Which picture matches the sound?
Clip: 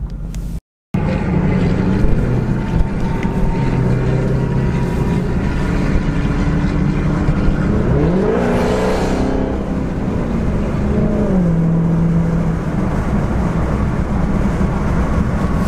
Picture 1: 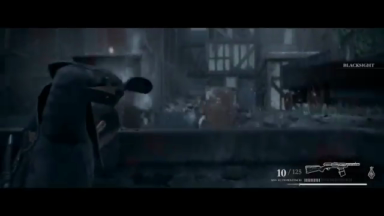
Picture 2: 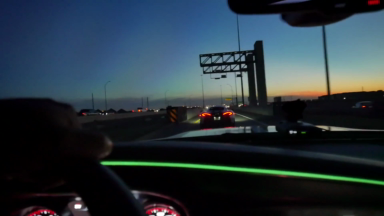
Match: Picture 2